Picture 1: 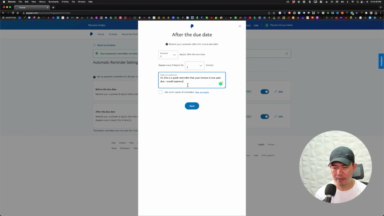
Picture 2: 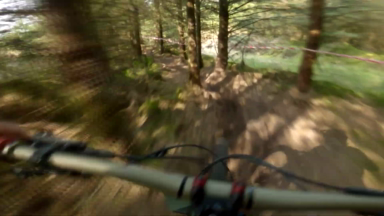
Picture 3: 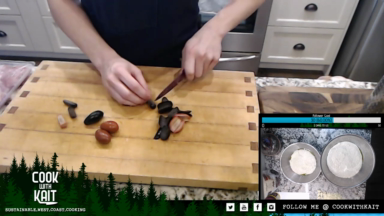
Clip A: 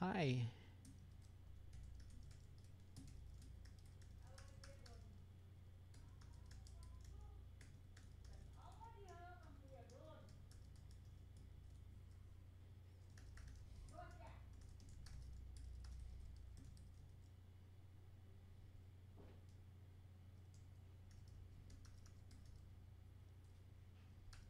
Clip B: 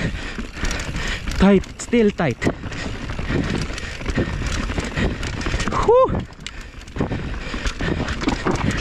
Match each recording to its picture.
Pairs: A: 1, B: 2